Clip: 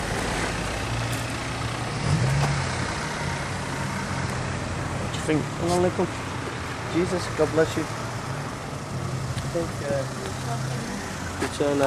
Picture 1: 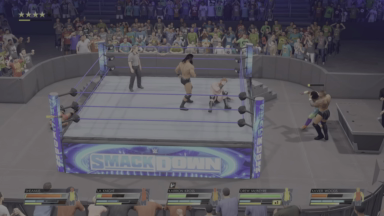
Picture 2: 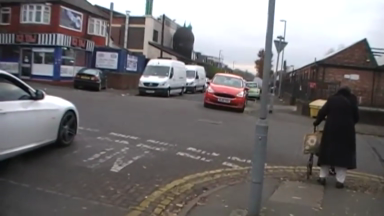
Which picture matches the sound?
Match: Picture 2